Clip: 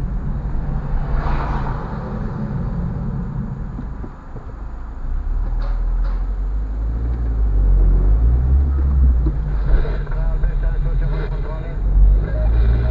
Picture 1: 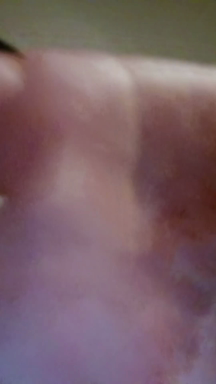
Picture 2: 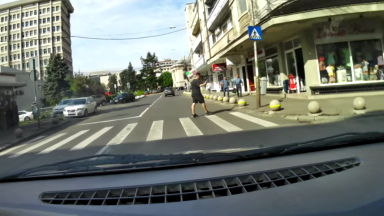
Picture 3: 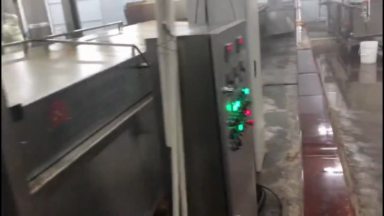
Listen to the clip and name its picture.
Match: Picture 2